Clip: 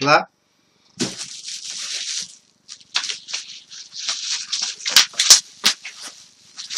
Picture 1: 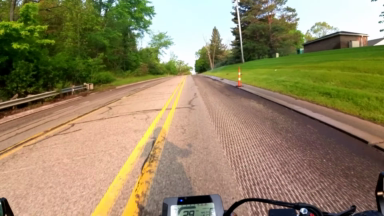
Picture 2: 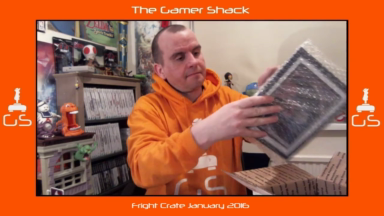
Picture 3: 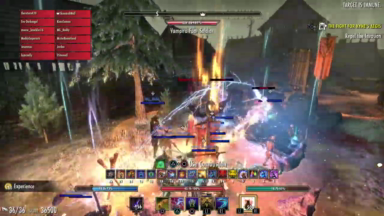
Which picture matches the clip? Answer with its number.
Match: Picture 2